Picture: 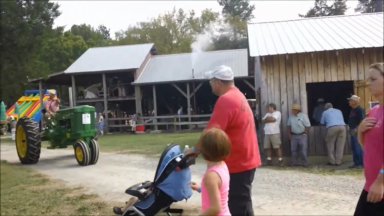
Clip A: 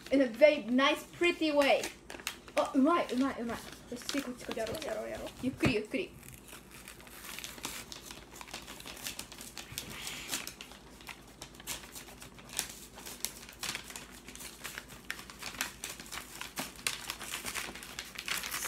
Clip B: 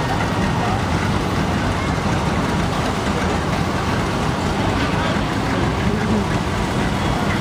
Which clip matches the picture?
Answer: B